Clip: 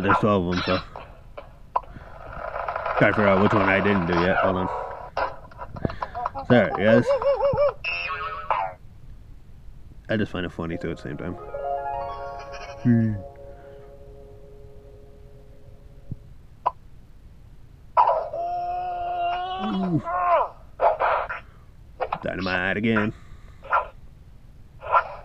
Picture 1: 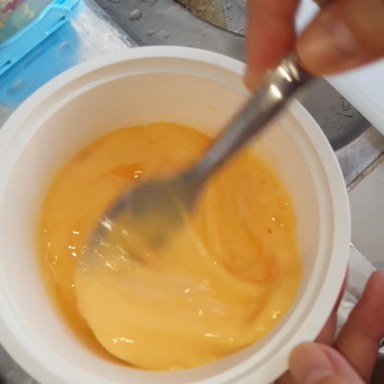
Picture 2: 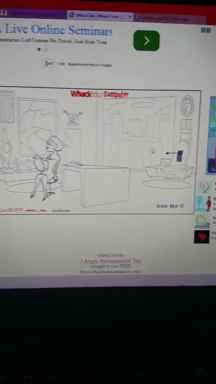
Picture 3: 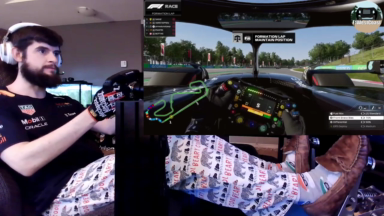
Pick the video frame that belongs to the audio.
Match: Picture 2